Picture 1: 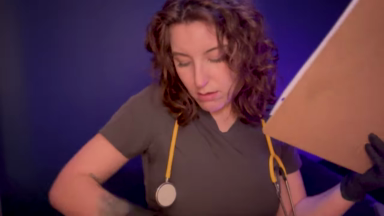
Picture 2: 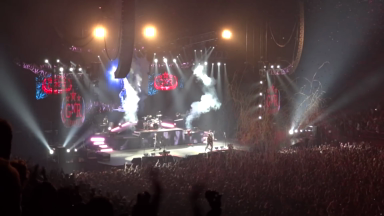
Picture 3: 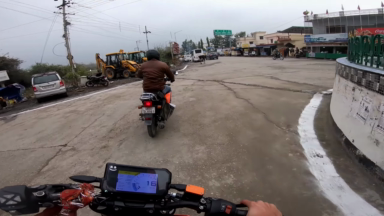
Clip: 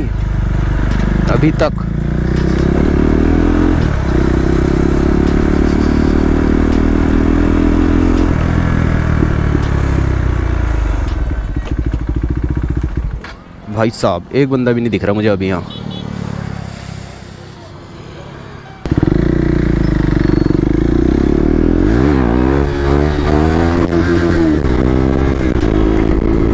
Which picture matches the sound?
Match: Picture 3